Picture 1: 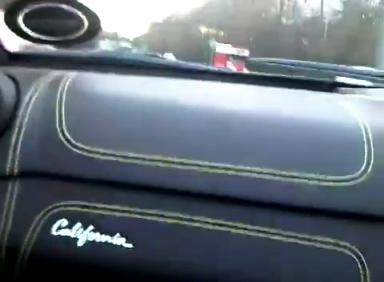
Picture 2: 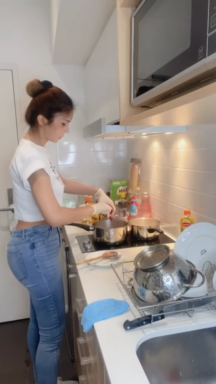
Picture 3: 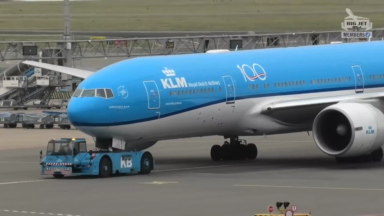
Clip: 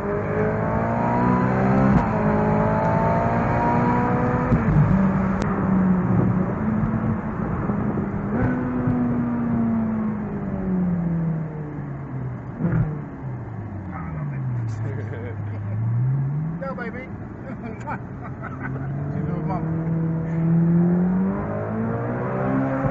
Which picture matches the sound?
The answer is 1